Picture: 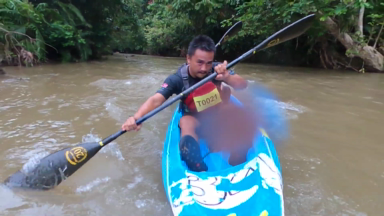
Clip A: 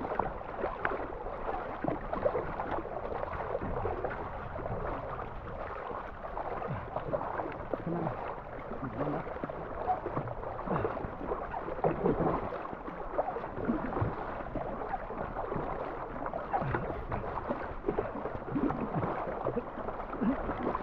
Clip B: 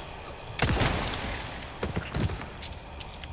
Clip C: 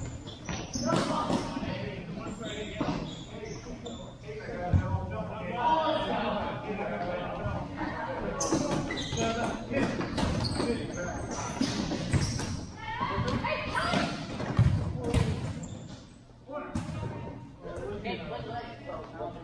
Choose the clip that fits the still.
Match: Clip A